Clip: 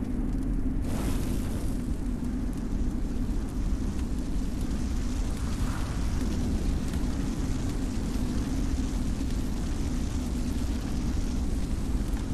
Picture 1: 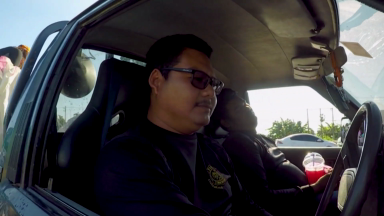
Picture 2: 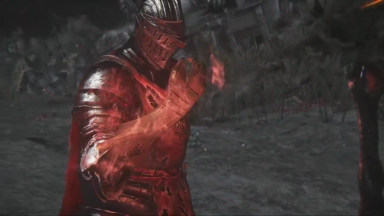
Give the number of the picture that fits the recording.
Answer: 2